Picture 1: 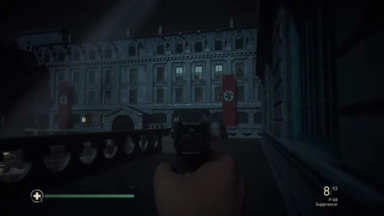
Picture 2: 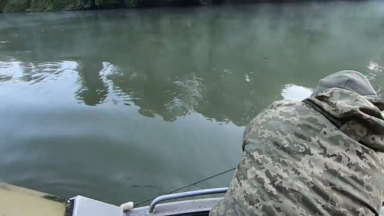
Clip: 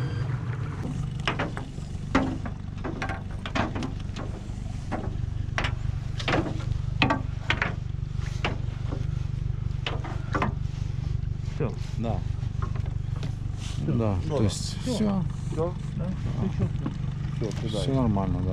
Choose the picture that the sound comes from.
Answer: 2